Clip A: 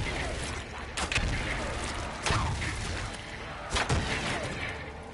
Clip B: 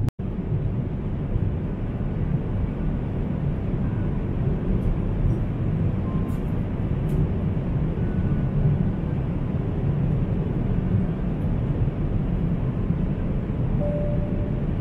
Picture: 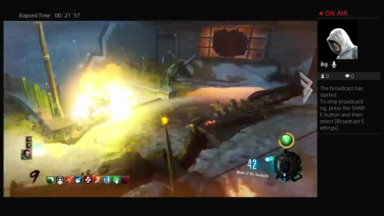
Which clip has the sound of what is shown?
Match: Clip A